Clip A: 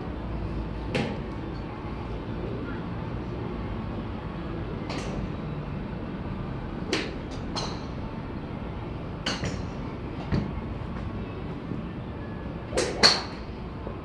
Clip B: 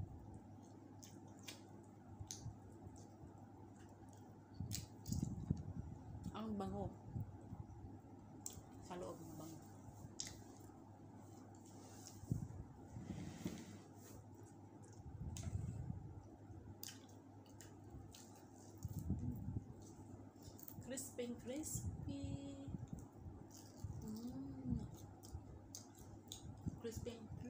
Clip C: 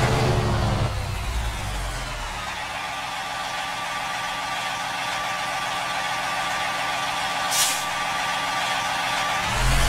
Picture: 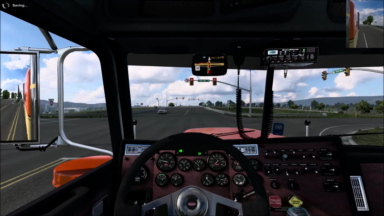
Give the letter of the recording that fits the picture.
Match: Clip C